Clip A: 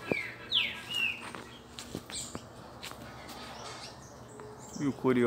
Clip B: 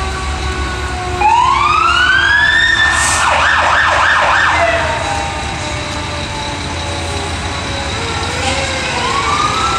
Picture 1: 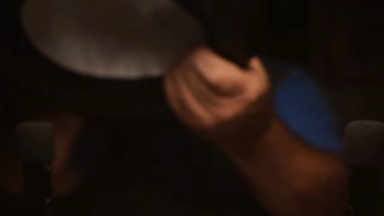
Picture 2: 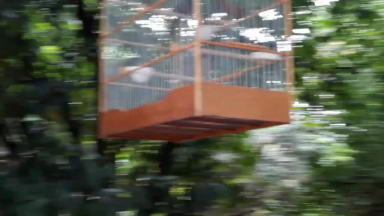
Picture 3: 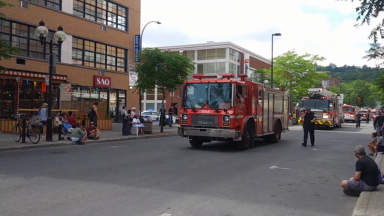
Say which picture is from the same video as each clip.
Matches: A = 2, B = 3